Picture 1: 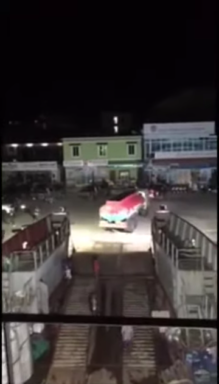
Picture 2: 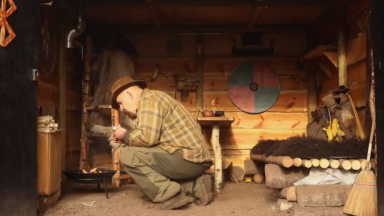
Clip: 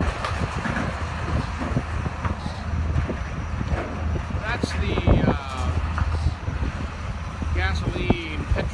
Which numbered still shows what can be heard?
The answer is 1